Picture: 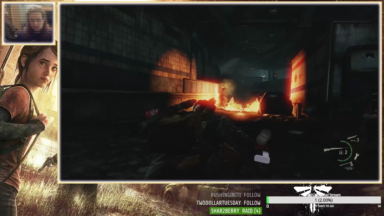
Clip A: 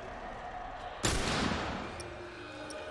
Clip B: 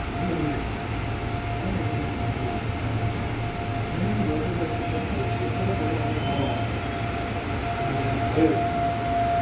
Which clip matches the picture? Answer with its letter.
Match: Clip A